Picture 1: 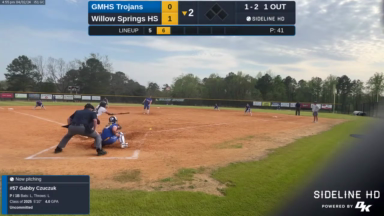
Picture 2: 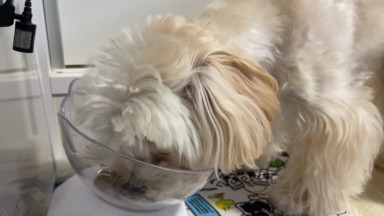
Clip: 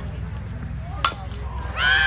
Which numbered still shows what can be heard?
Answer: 1